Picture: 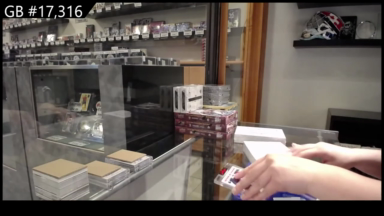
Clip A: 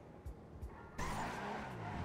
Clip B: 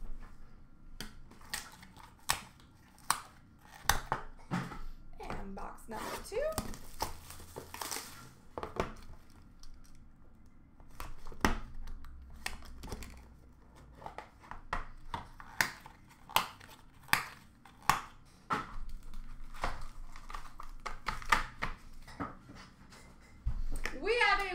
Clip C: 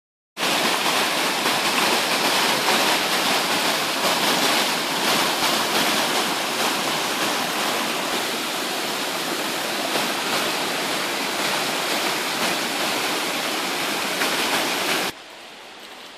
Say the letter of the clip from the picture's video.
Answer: B